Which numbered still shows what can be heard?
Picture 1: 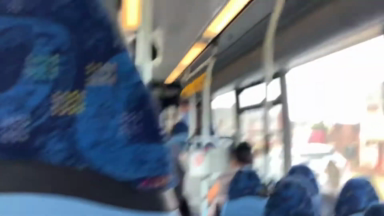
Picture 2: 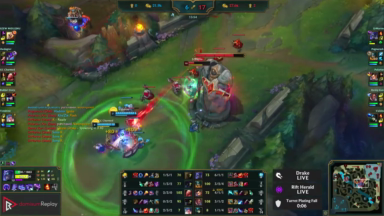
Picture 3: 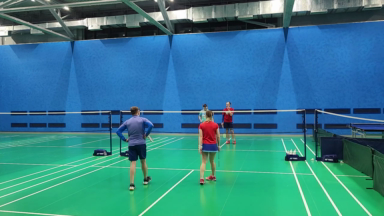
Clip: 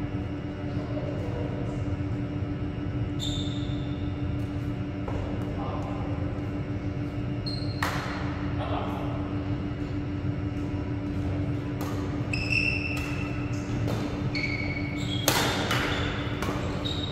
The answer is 3